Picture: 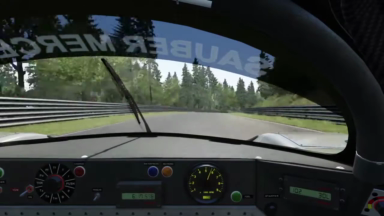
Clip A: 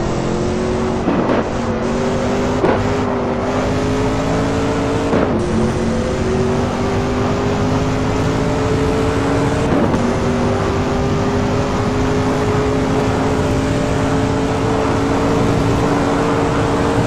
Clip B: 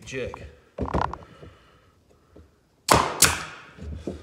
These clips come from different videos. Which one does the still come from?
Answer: A